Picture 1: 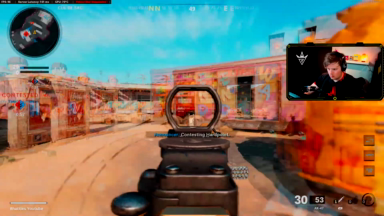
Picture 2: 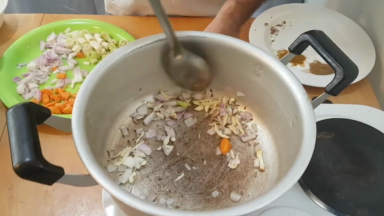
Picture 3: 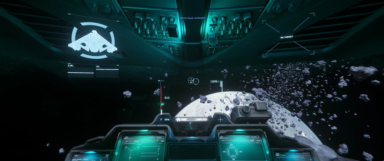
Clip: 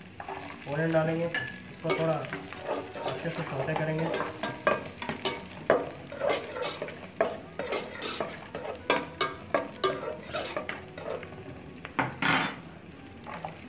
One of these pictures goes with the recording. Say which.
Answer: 2